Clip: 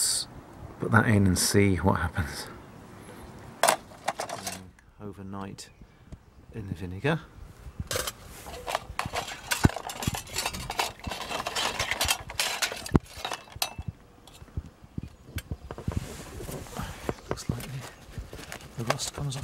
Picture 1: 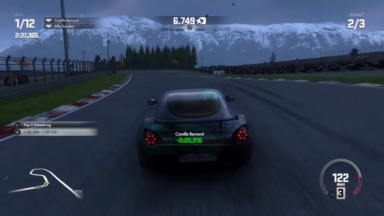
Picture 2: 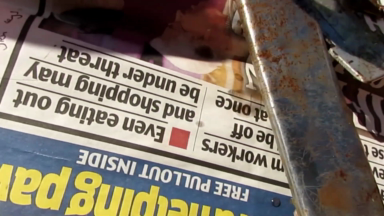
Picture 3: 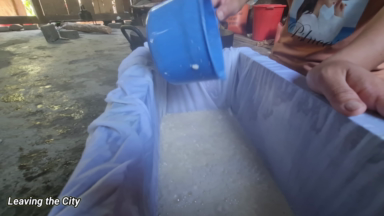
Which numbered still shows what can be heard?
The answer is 2